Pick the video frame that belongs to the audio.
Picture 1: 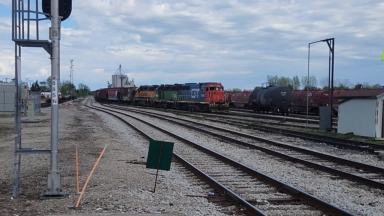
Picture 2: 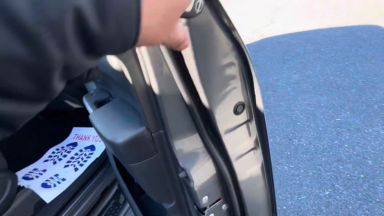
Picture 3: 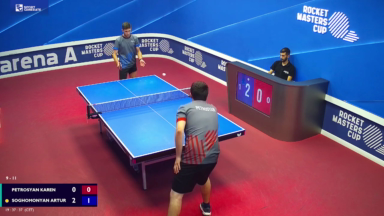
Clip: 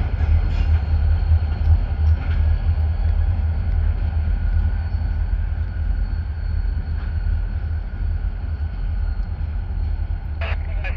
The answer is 1